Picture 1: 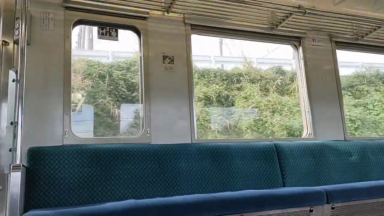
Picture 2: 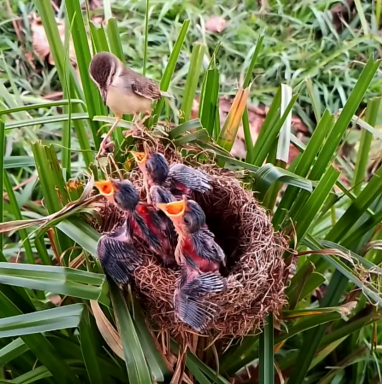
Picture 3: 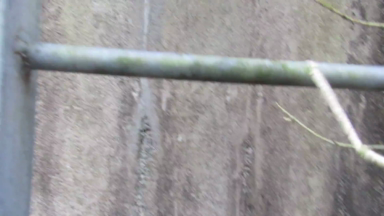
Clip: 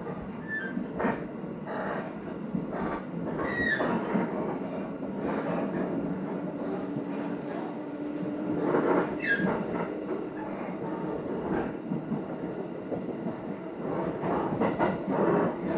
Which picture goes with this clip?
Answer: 1